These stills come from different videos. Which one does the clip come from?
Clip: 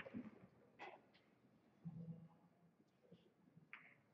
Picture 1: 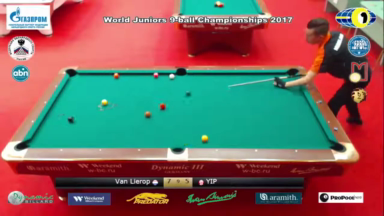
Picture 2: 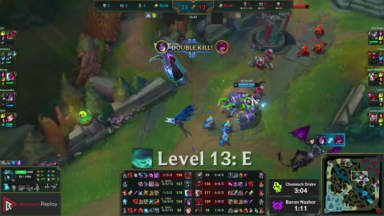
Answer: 1